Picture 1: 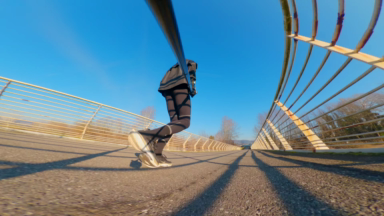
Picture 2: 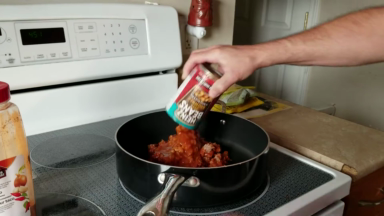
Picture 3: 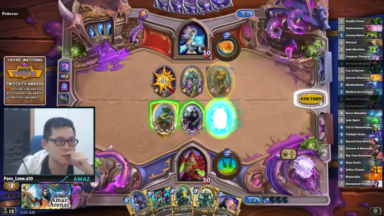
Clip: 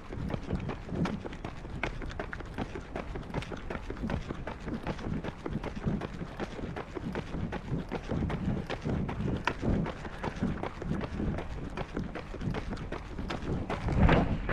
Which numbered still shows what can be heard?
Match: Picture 1